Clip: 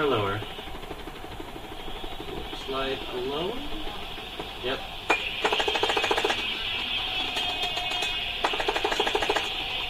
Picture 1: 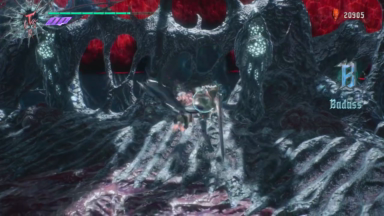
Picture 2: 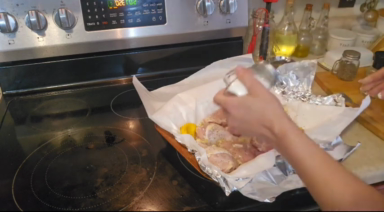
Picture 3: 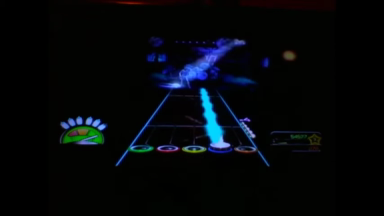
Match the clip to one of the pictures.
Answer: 3